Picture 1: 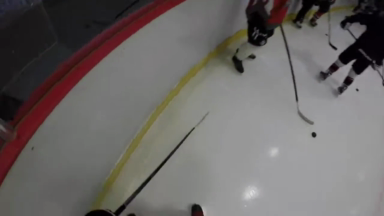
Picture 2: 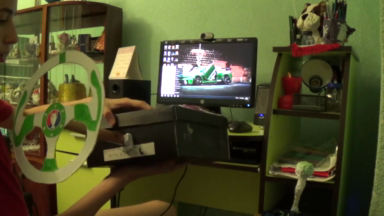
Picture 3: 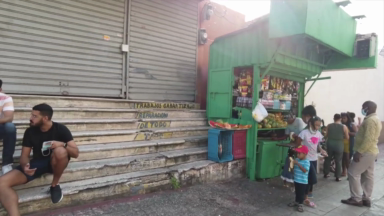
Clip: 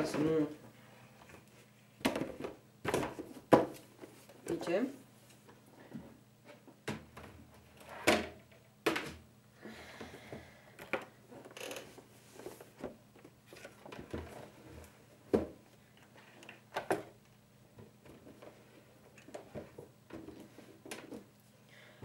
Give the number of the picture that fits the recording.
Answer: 2